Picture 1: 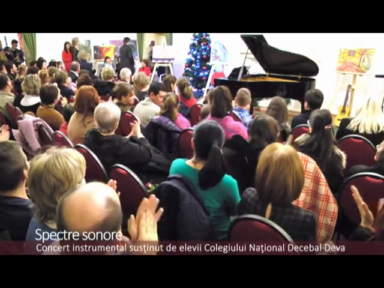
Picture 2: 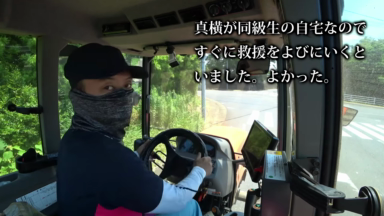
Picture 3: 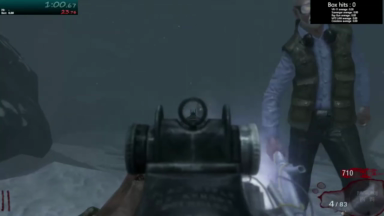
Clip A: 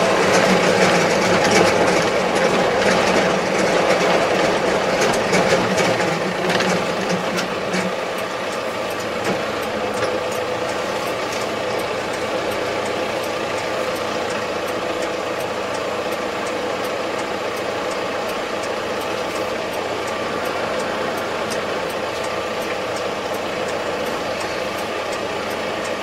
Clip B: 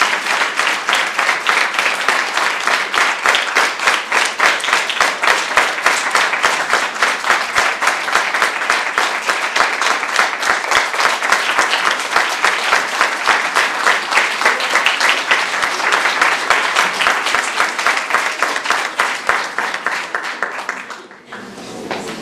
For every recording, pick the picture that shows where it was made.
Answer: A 2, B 1